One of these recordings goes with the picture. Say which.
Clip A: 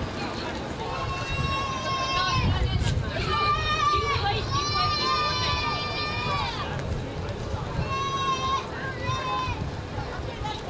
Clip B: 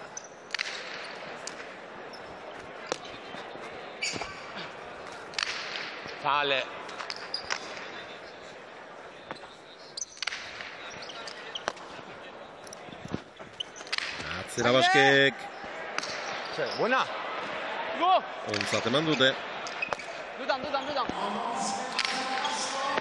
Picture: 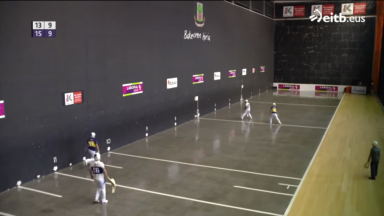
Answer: B